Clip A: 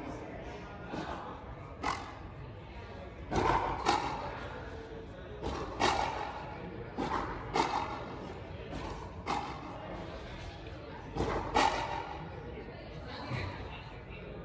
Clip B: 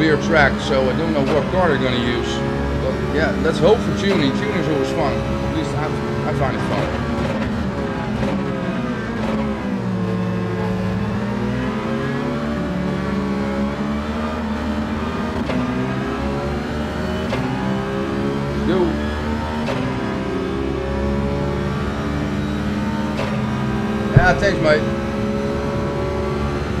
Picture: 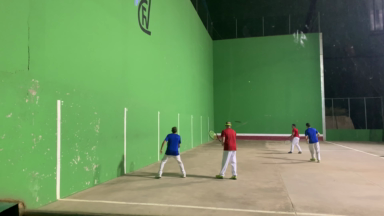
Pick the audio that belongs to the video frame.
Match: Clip A